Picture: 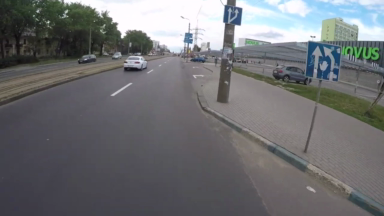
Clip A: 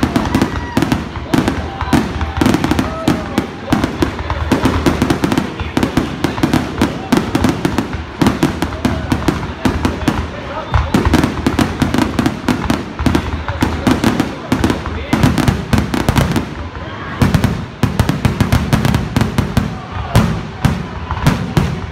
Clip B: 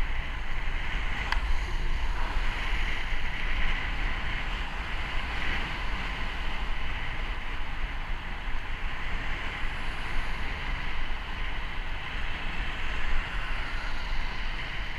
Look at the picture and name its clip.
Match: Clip B